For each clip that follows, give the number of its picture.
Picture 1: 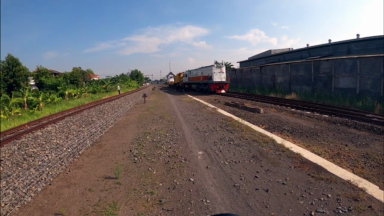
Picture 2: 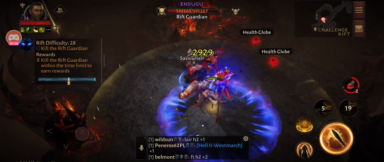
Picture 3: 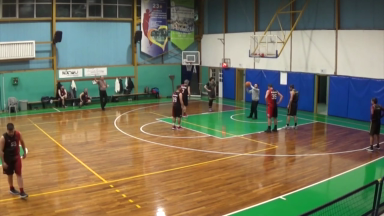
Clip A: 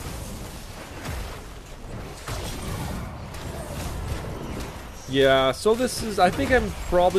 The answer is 2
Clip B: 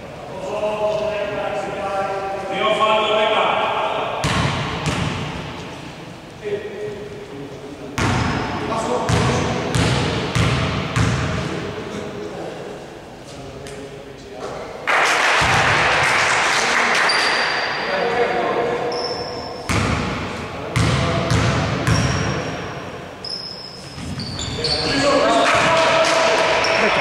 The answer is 3